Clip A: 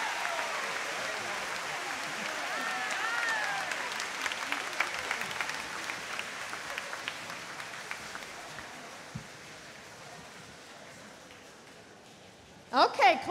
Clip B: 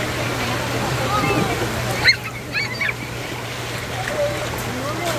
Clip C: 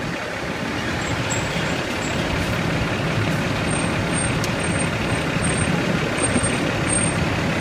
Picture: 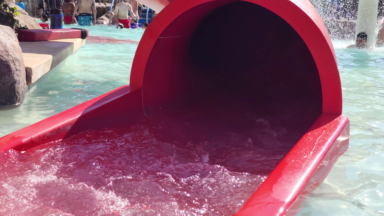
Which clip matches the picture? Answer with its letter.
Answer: B